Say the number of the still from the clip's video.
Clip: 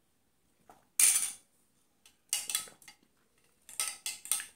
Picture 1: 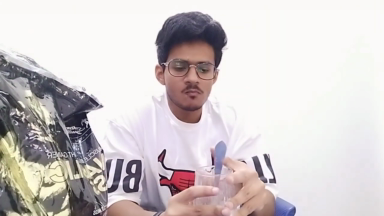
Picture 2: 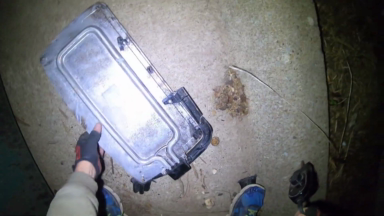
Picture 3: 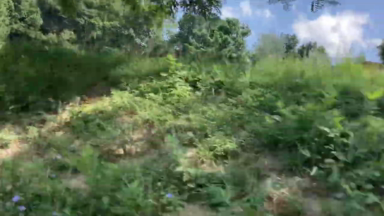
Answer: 1